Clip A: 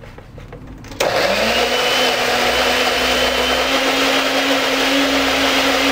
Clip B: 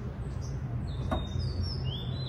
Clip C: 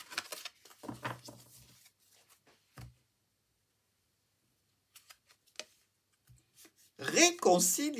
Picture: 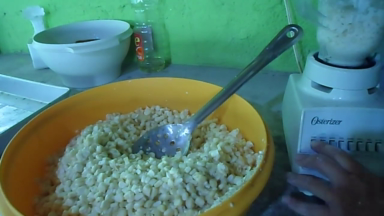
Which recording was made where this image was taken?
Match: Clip A